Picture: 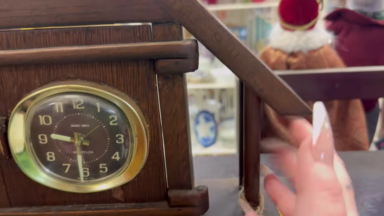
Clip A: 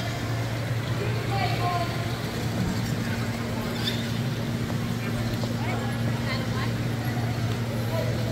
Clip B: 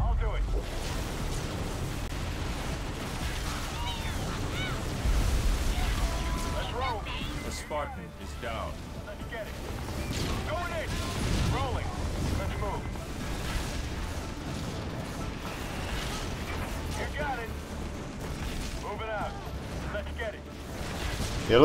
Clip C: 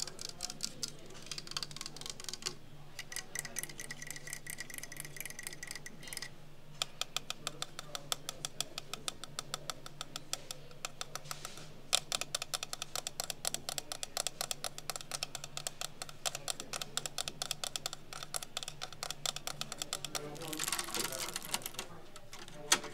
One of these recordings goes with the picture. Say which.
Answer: C